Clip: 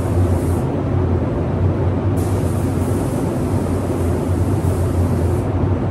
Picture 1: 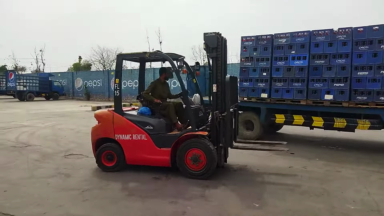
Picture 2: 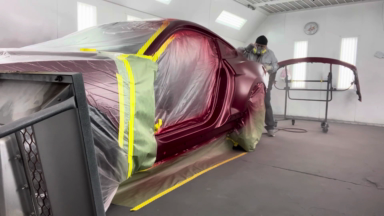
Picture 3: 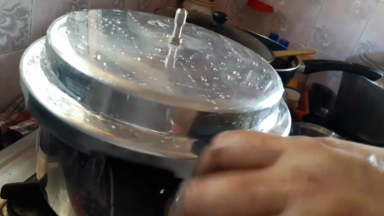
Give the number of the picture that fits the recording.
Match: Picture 2